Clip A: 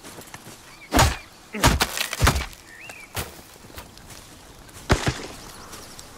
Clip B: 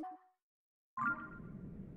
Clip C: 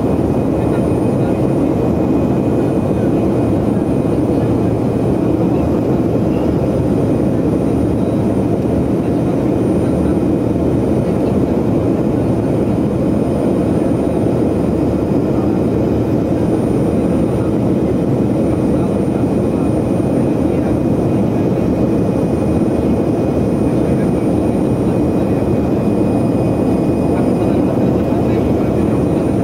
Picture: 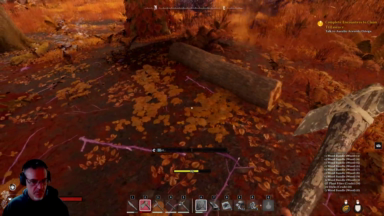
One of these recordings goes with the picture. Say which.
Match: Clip A